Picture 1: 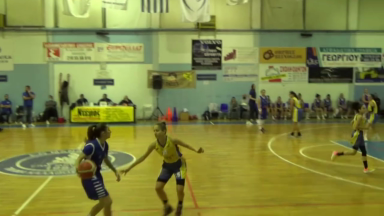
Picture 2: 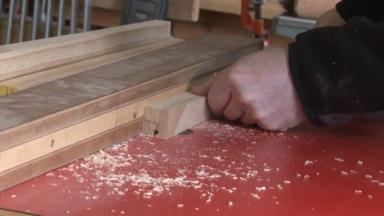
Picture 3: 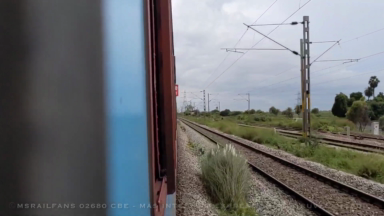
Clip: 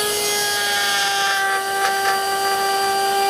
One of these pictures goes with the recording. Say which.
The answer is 2